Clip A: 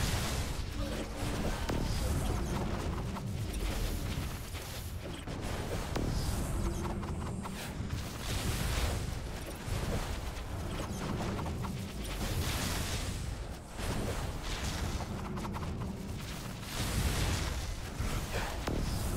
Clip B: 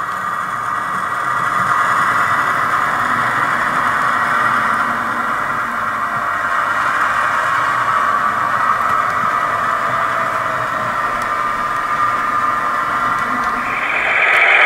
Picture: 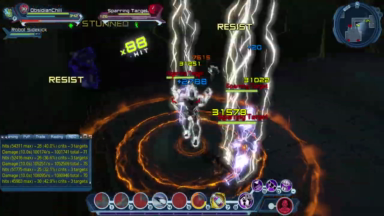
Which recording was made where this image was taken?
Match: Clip A